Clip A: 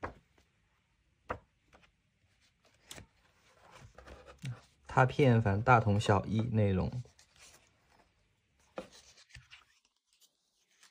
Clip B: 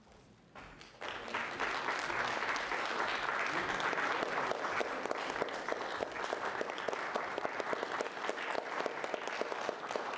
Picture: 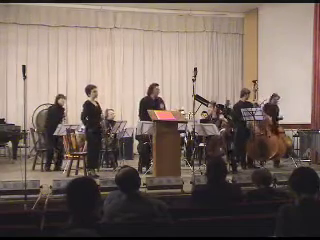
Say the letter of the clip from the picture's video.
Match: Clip B